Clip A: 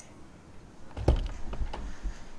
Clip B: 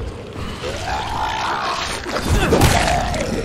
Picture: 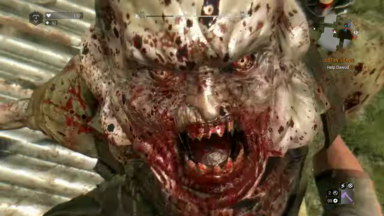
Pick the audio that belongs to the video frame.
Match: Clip B